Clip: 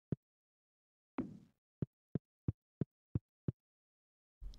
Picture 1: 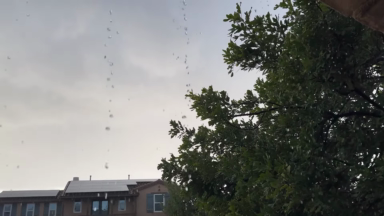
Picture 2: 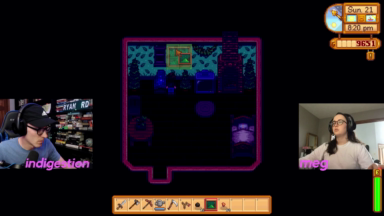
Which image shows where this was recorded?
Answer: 2